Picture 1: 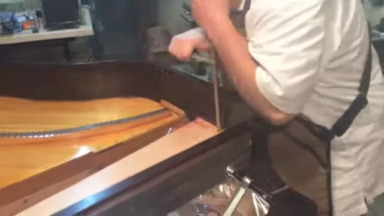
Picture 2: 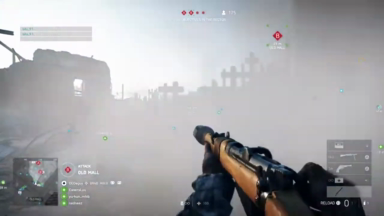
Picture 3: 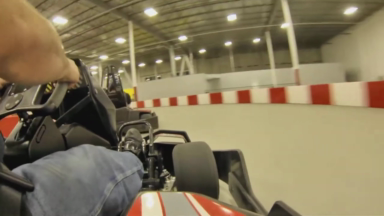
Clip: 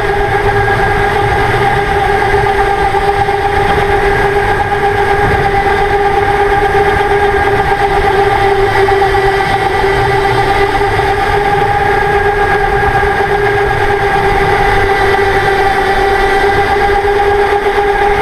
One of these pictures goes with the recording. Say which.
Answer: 3